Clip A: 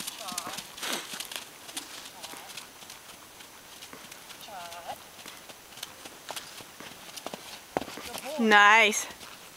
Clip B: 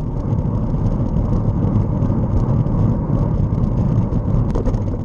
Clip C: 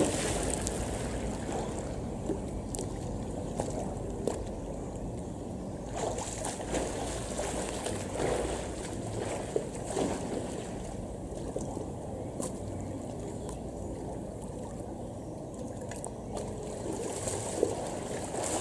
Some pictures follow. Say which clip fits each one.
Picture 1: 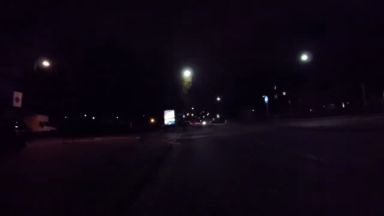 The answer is B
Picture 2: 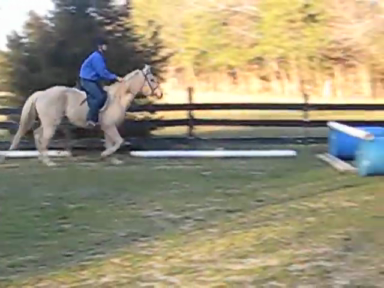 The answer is A